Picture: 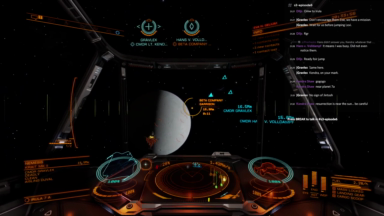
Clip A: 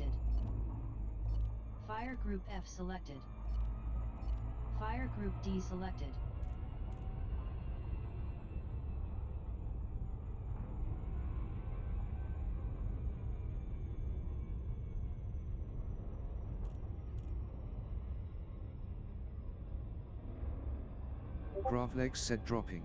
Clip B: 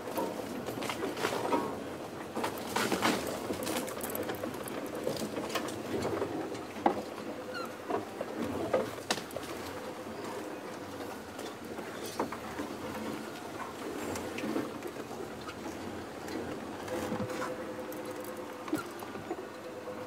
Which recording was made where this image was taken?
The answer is A